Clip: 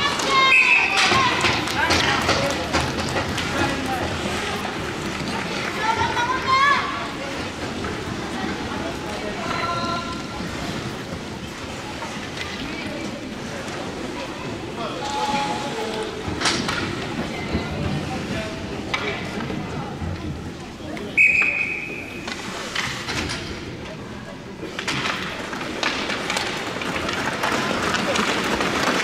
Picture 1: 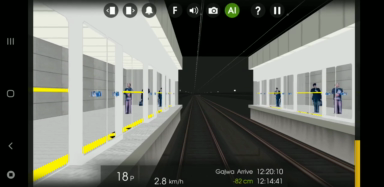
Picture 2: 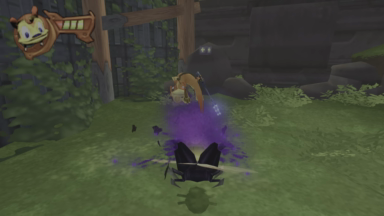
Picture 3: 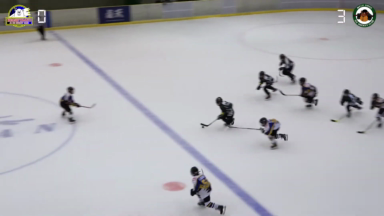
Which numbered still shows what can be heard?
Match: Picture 3